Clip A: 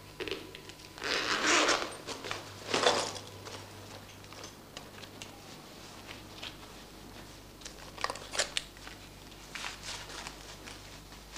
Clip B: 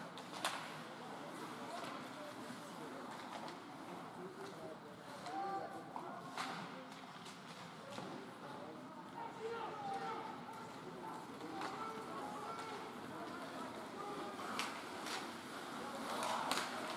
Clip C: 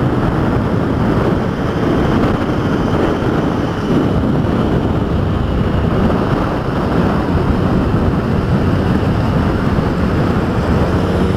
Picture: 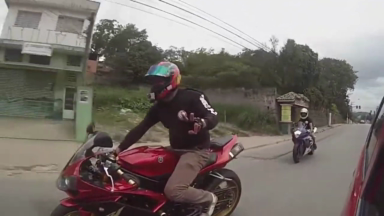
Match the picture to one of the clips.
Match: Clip C